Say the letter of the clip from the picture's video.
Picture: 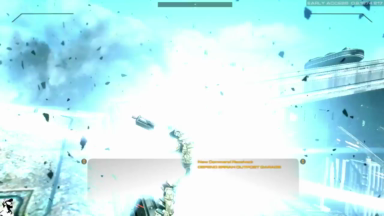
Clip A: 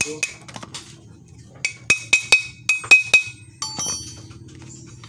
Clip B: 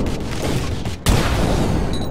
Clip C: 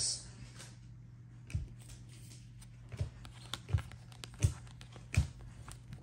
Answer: B